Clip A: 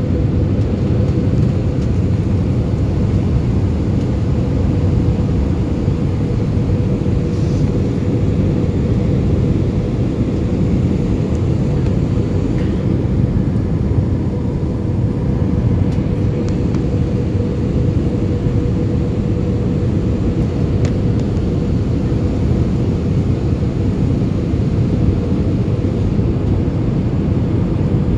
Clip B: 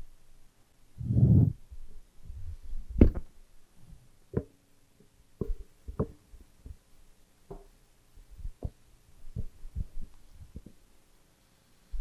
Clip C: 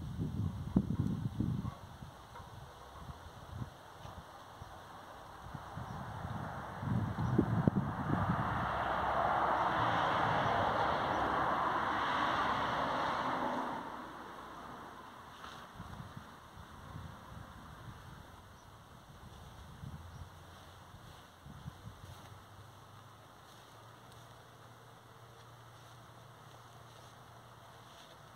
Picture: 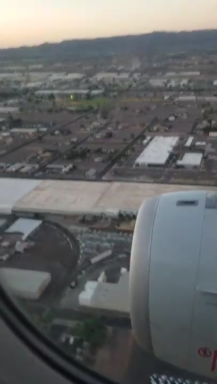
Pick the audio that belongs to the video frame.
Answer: A